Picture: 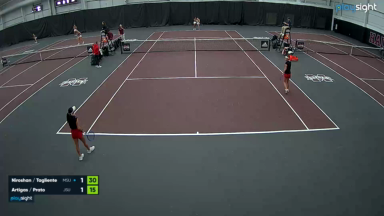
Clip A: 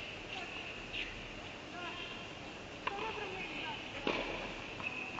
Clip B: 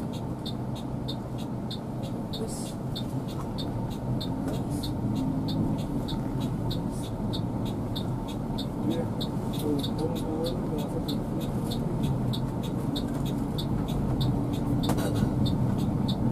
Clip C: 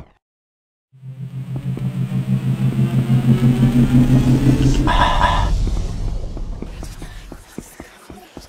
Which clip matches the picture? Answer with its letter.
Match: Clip A